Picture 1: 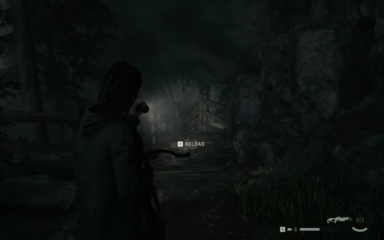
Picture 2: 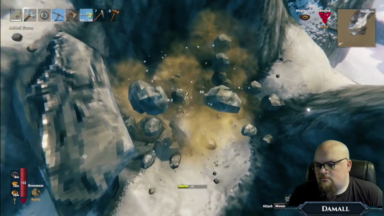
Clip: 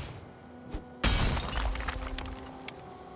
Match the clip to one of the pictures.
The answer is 2